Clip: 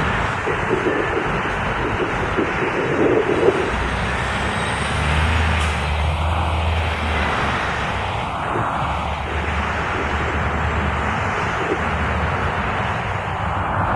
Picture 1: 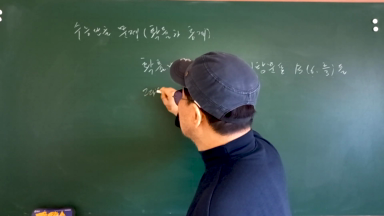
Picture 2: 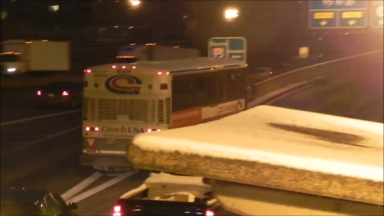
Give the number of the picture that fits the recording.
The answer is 2